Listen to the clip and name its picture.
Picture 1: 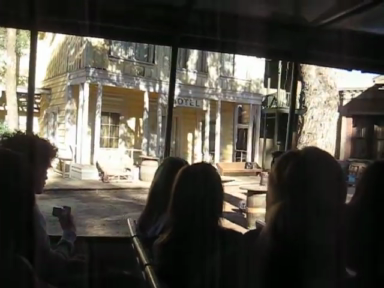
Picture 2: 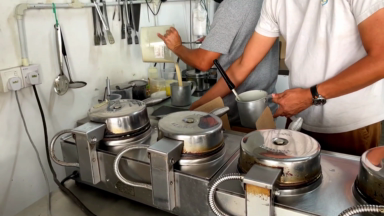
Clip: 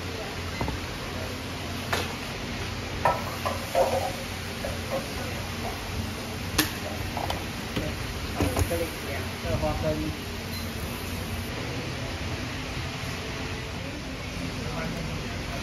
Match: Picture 2